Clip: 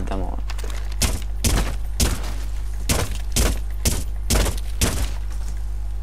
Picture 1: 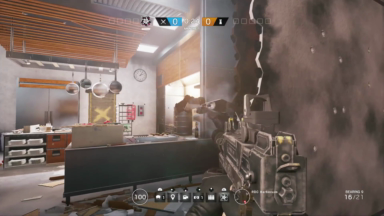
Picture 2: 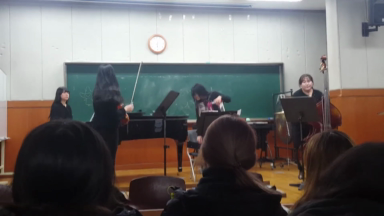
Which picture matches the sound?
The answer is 1